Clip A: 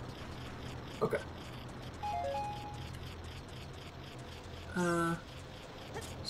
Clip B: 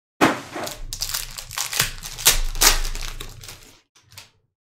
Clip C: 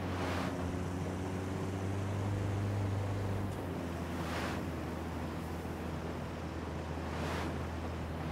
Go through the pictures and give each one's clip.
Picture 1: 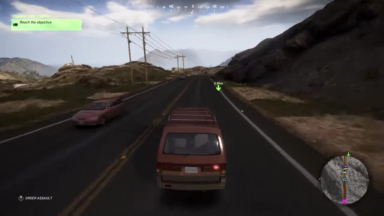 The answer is C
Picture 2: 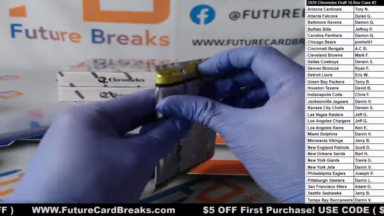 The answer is B